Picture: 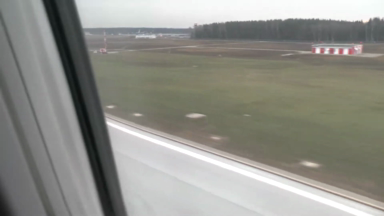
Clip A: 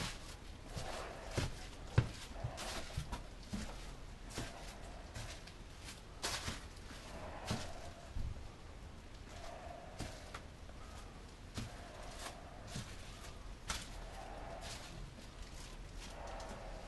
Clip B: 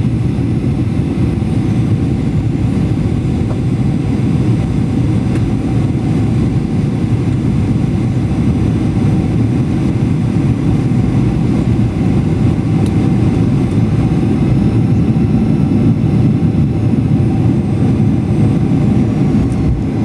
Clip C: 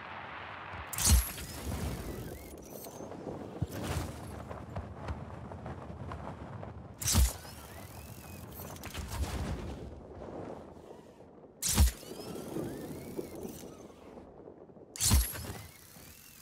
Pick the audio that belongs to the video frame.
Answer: B